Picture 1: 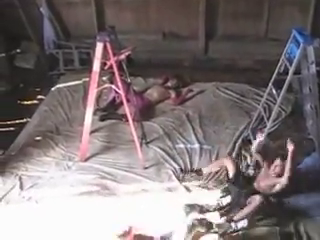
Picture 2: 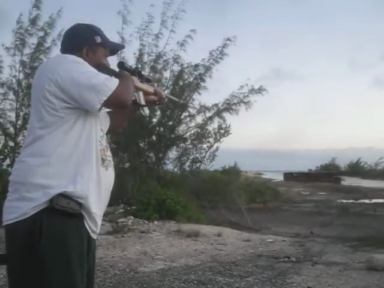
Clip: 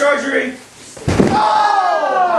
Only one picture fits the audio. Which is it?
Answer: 1